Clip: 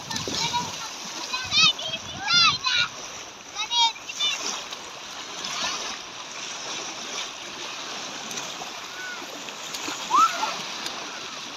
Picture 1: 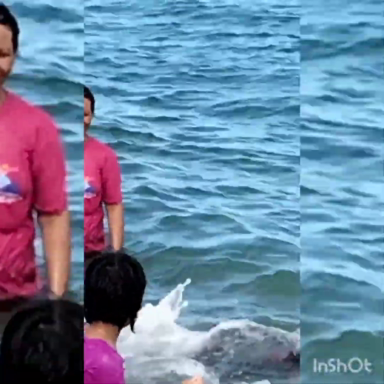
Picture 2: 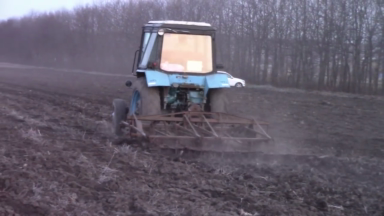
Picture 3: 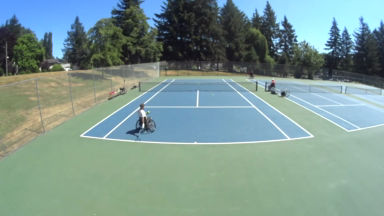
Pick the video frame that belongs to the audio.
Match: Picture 1